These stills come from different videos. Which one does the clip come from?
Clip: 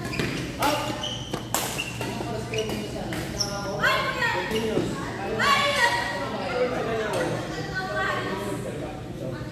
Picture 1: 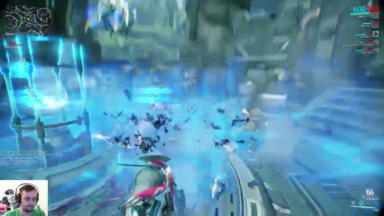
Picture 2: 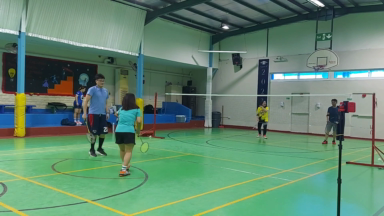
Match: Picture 2